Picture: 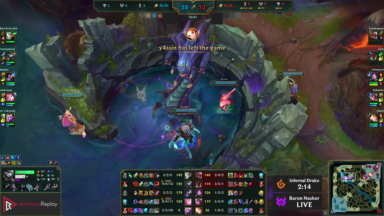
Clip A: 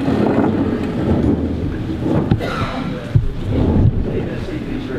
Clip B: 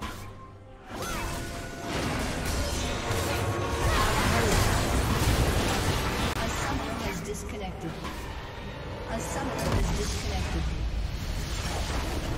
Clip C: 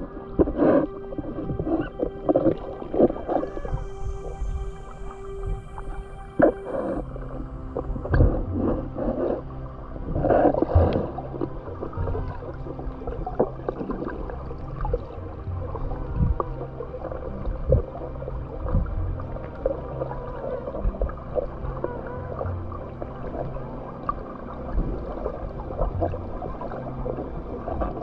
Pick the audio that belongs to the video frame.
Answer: B